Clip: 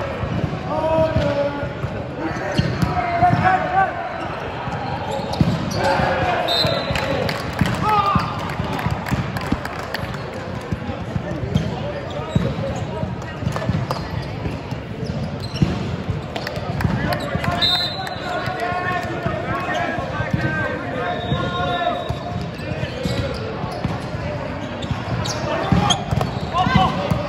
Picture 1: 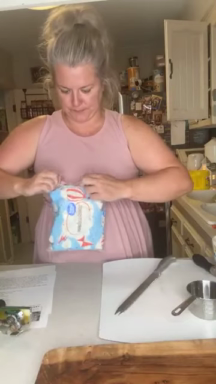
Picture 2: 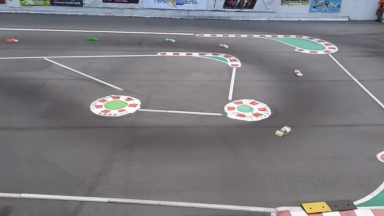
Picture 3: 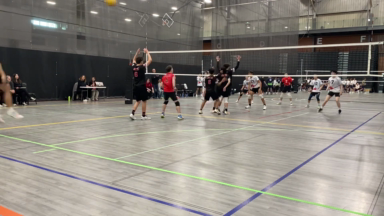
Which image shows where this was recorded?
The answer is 3